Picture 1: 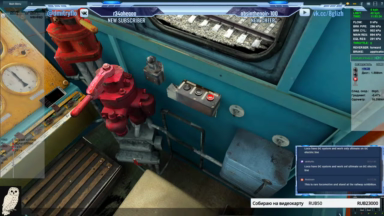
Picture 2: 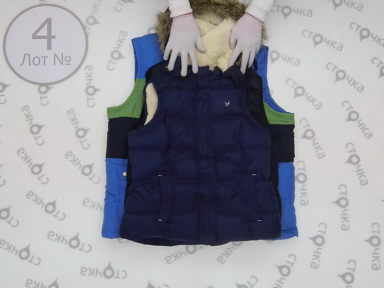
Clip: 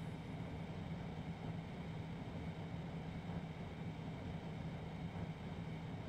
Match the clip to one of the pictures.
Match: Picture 1